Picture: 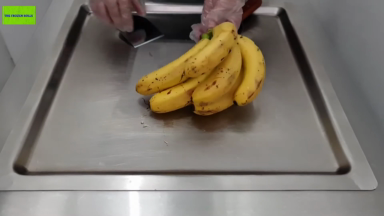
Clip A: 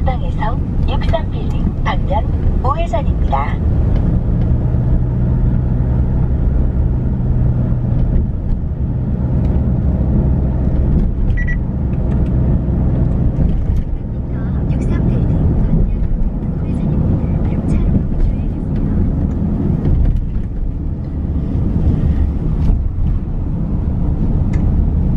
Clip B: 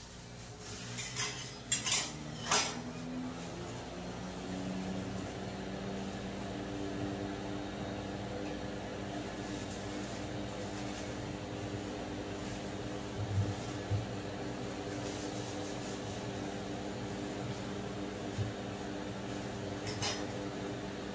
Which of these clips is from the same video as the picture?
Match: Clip B